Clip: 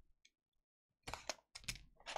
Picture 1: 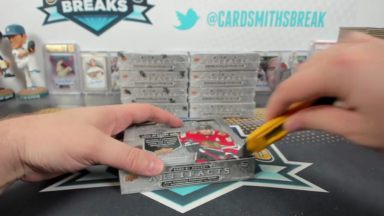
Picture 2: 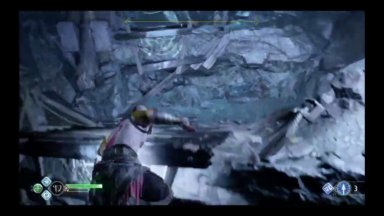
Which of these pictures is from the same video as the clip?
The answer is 1